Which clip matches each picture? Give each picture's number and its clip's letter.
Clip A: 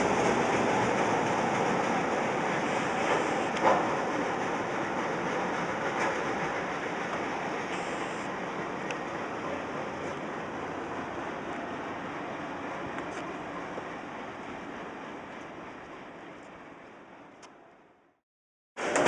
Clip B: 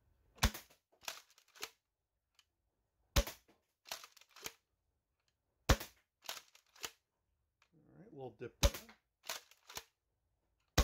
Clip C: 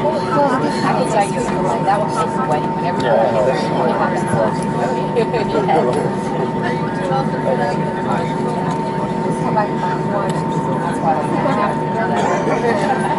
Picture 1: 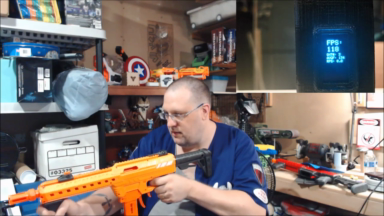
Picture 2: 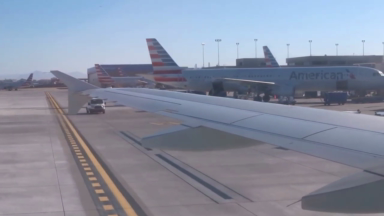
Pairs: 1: B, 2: C